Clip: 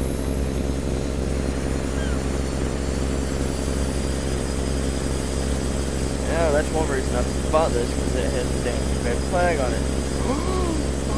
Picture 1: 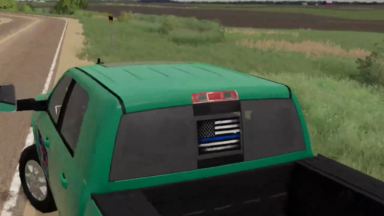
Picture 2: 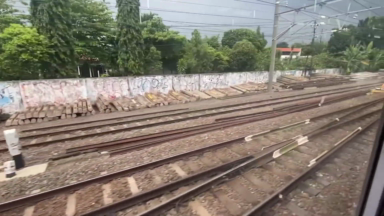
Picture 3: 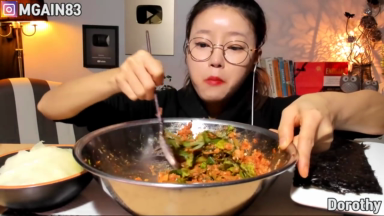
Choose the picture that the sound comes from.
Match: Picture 1